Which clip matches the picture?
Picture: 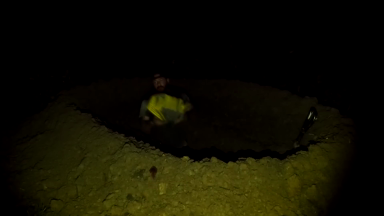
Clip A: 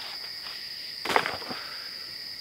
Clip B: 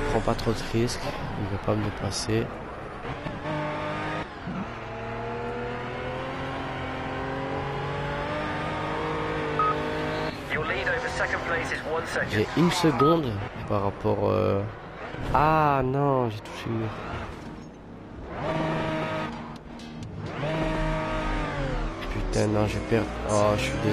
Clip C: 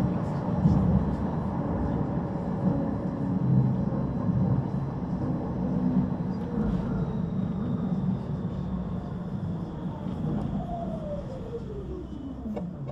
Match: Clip A